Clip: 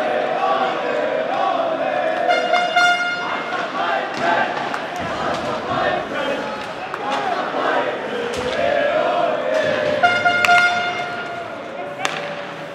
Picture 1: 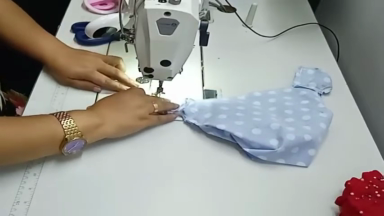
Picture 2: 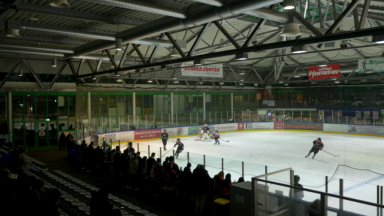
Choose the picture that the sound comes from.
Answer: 2